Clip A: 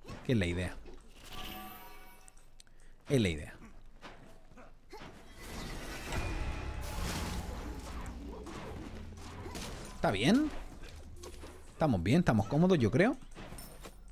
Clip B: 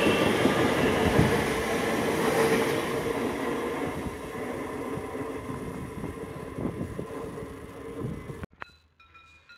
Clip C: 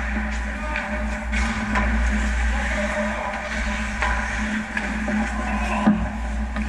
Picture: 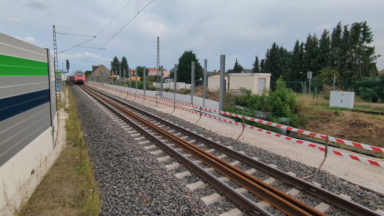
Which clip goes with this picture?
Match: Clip B